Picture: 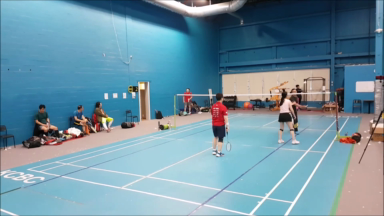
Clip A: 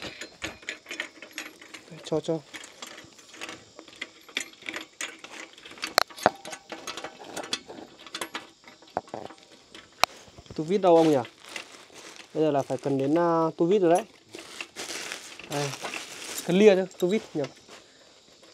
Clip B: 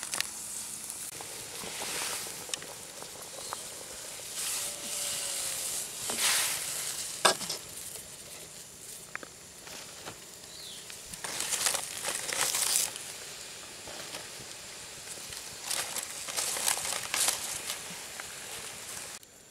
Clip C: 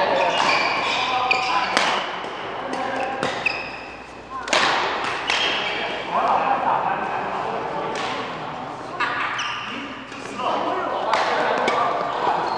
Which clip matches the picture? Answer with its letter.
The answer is C